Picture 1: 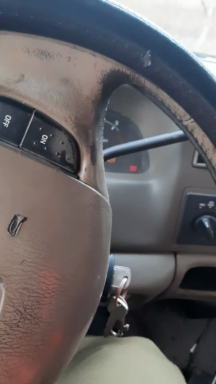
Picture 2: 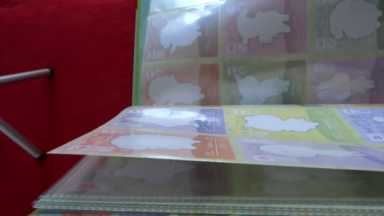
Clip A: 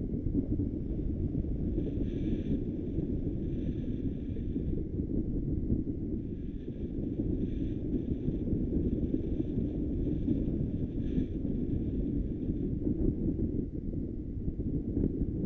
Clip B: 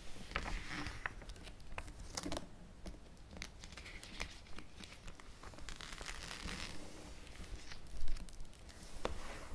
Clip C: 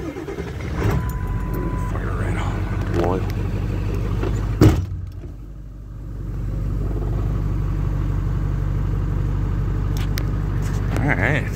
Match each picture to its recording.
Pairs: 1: C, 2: B